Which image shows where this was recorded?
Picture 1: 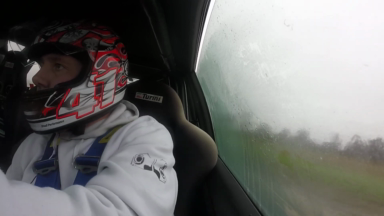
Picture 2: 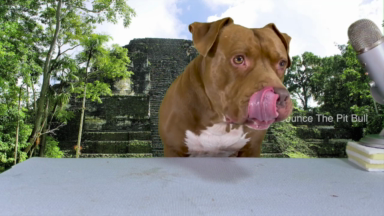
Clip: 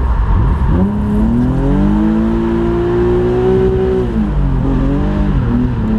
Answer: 1